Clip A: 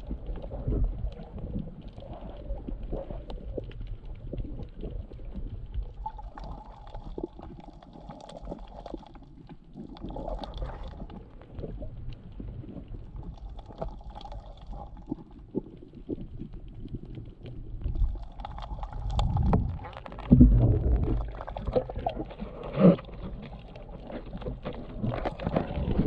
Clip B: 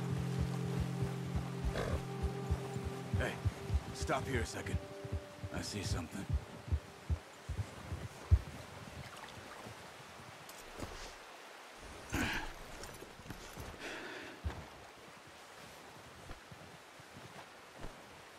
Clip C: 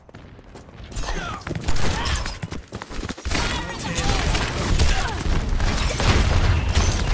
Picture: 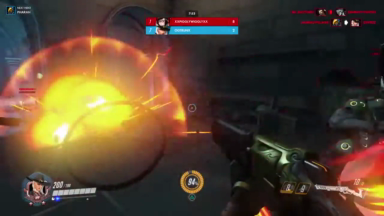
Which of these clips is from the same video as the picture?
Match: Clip C